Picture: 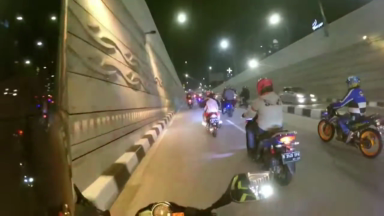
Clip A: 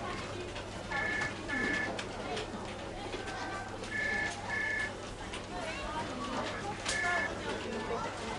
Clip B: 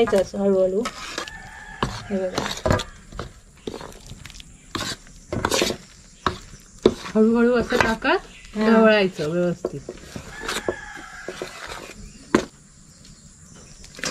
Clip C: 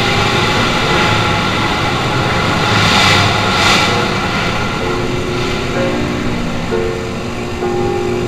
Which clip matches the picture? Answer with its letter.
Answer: C